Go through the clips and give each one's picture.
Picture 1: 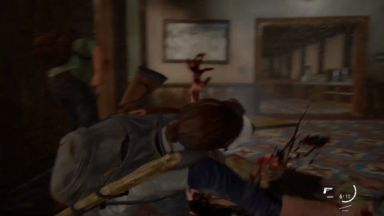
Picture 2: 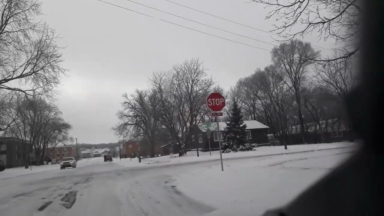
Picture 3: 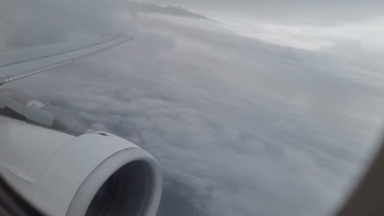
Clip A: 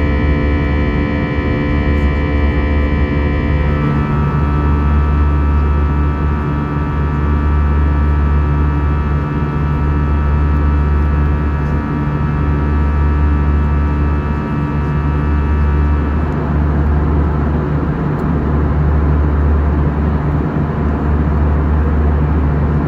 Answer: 3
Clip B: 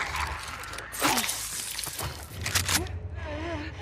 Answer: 1